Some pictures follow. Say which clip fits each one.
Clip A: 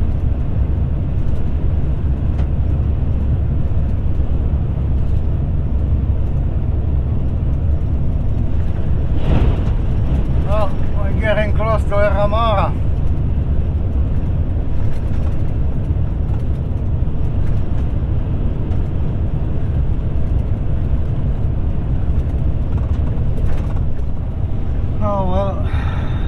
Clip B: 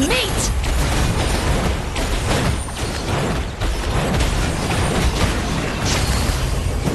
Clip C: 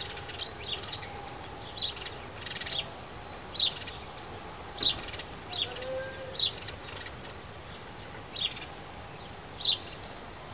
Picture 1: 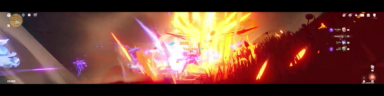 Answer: B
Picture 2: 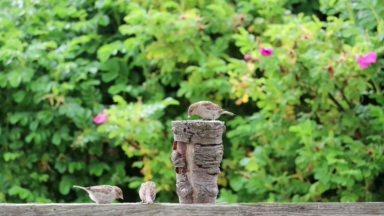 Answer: C